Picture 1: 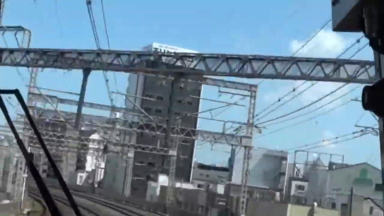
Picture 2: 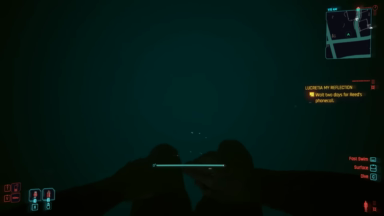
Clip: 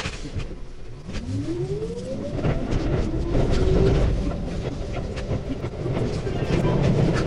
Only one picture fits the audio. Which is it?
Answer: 1